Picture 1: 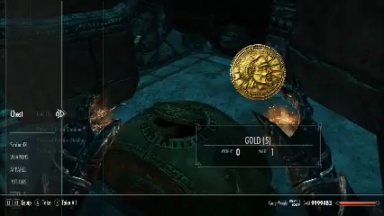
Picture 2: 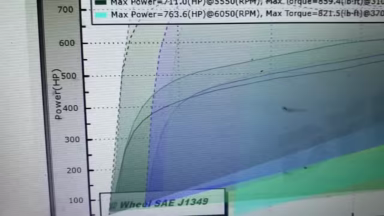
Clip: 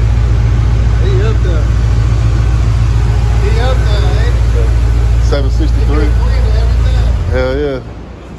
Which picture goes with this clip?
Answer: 2